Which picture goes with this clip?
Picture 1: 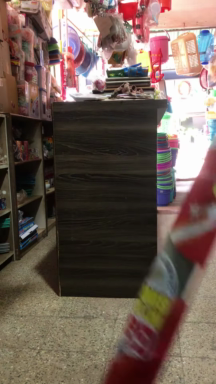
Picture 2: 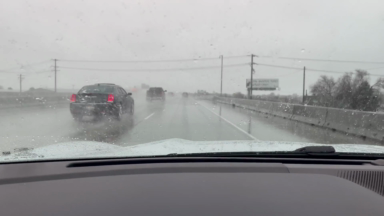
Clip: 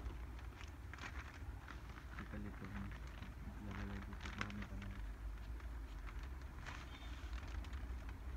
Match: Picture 1